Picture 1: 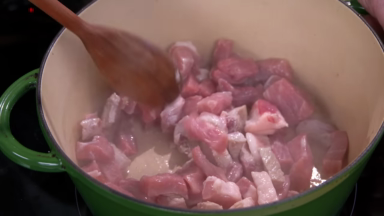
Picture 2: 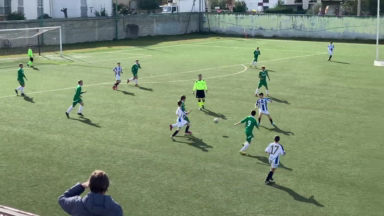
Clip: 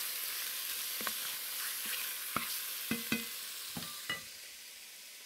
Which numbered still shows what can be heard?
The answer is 1